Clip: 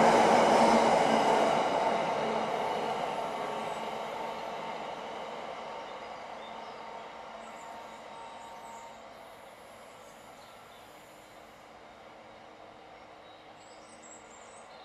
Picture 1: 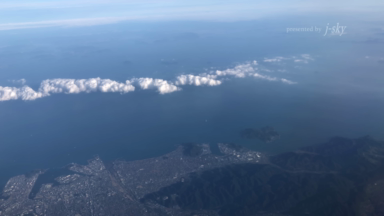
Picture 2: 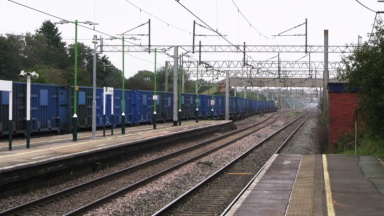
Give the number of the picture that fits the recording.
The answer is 2